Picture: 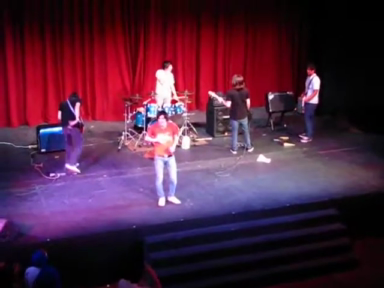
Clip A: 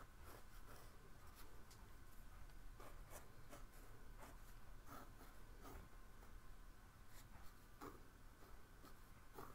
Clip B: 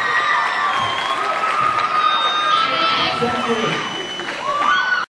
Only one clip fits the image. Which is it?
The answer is B